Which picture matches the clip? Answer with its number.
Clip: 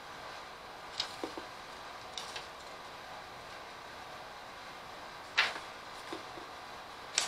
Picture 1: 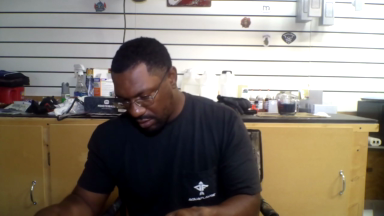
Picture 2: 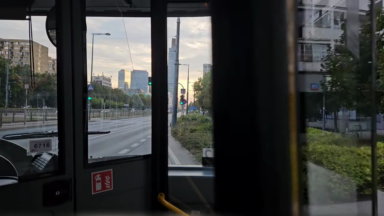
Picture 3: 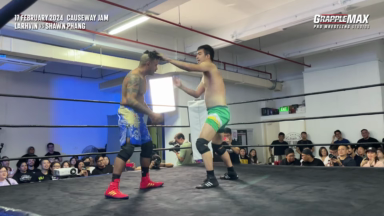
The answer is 1